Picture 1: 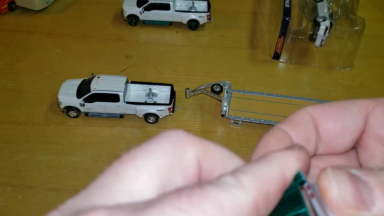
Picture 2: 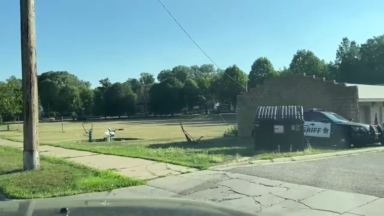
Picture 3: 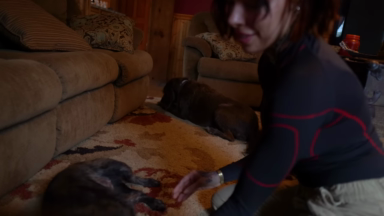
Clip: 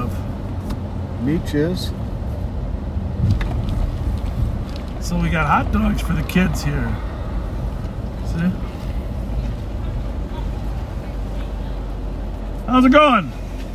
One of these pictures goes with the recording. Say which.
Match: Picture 2